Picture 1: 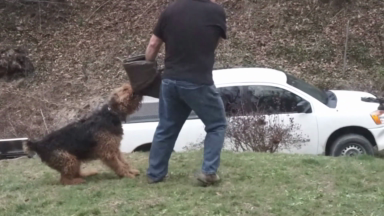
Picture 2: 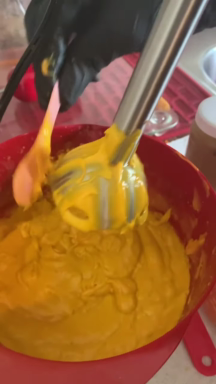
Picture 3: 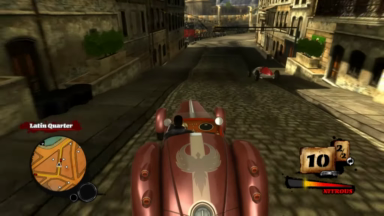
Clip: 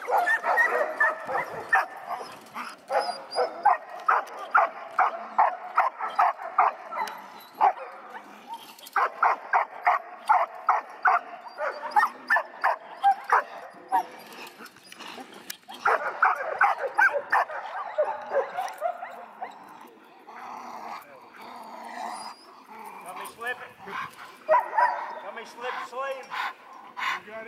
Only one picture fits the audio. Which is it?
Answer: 1